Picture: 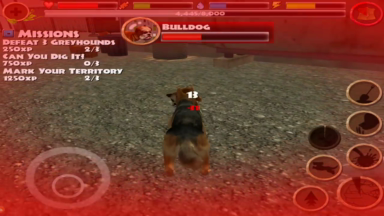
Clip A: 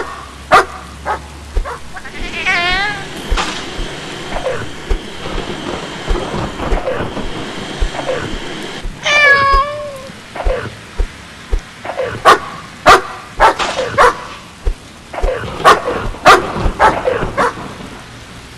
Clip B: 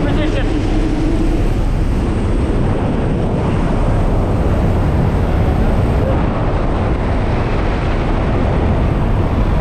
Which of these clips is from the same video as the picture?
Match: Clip A